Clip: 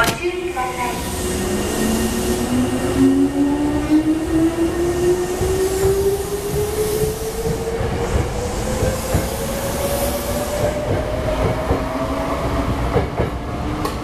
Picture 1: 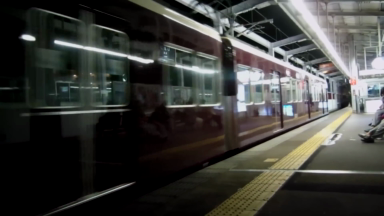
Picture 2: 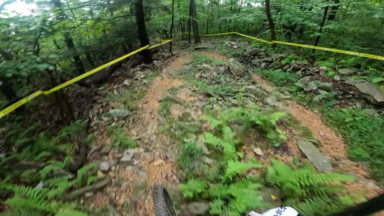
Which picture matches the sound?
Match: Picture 1